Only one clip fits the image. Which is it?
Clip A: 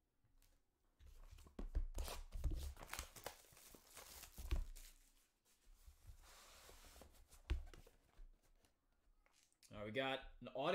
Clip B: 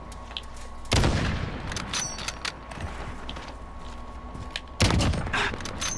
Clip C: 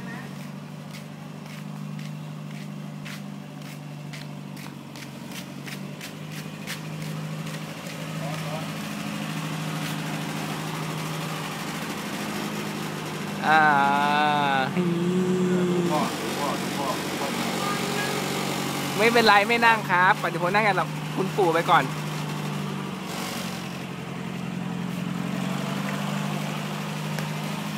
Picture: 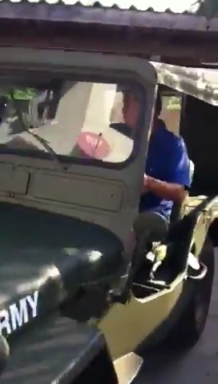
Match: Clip C